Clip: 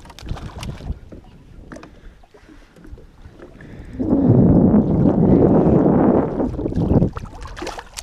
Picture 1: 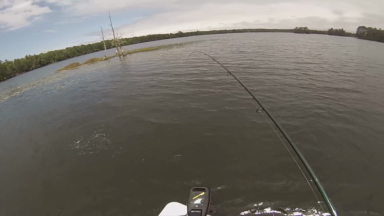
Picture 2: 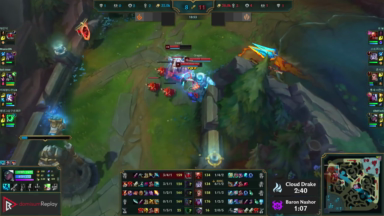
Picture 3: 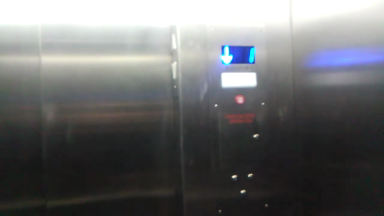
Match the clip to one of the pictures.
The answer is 1